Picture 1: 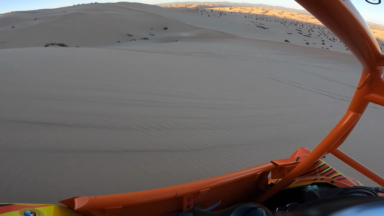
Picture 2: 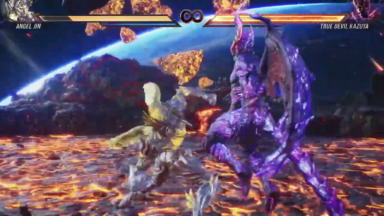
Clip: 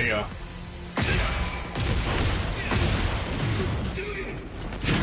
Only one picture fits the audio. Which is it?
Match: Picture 2